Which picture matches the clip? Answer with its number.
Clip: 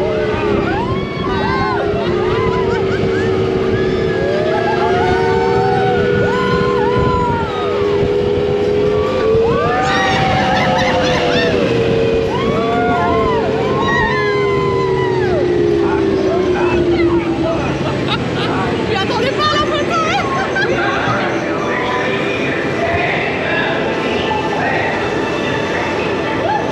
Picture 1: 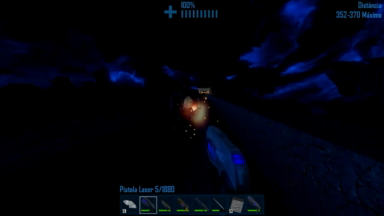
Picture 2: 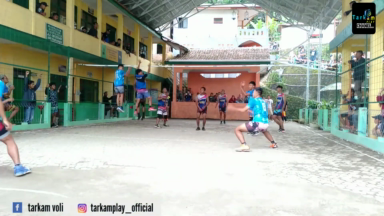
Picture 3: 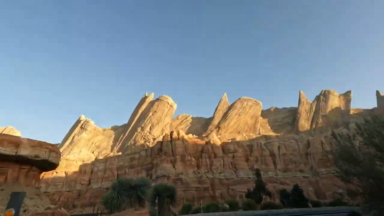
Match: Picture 3